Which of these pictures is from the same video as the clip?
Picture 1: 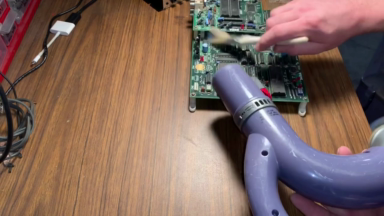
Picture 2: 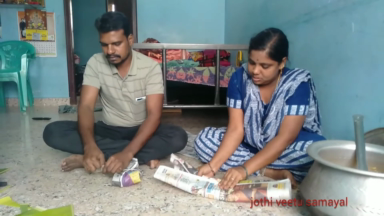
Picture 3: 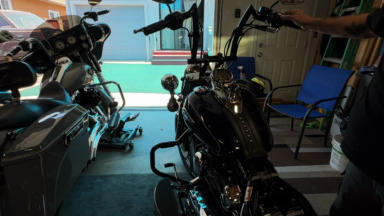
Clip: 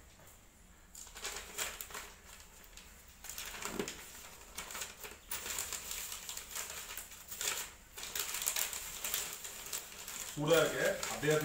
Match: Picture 2